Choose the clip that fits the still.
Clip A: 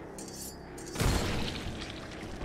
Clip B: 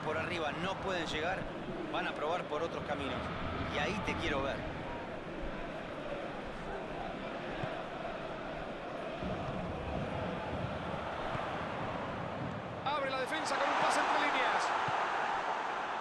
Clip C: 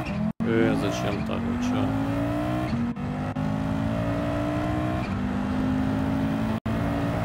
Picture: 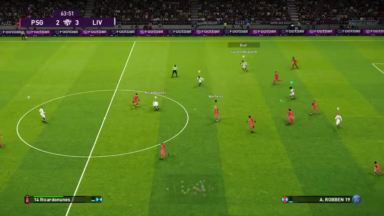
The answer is B